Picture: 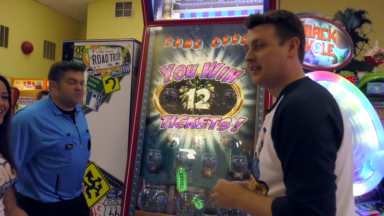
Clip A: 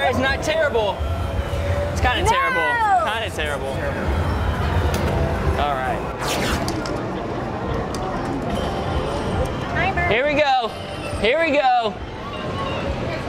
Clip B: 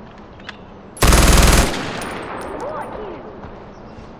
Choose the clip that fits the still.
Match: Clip A